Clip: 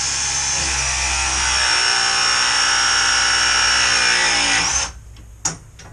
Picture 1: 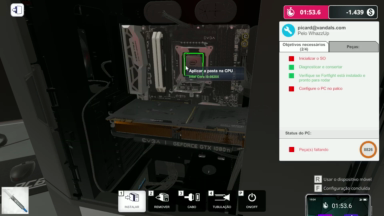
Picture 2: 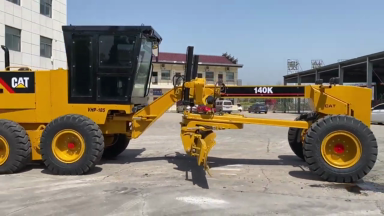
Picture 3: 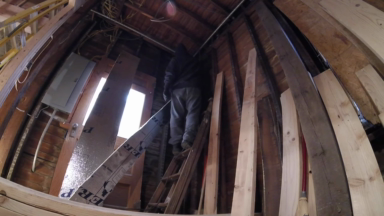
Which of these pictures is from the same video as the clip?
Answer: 3